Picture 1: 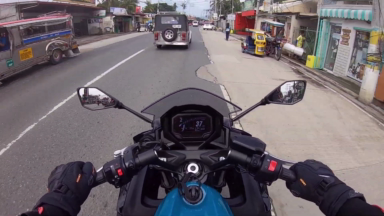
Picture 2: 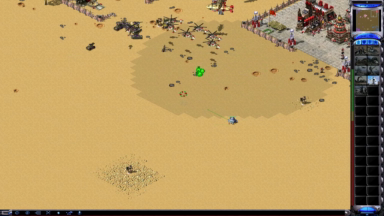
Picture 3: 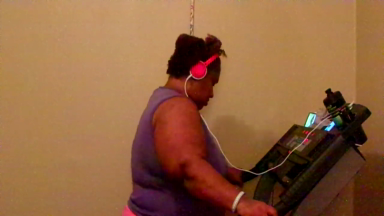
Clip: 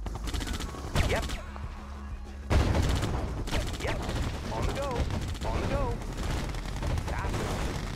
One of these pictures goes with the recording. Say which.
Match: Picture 2